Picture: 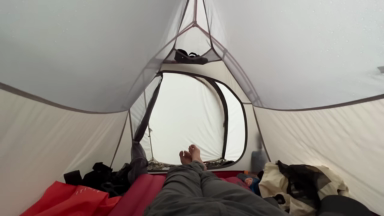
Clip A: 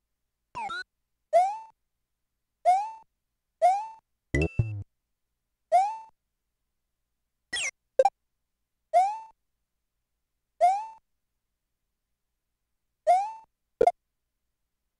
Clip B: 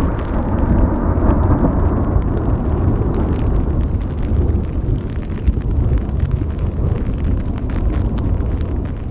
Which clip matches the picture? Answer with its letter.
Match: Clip B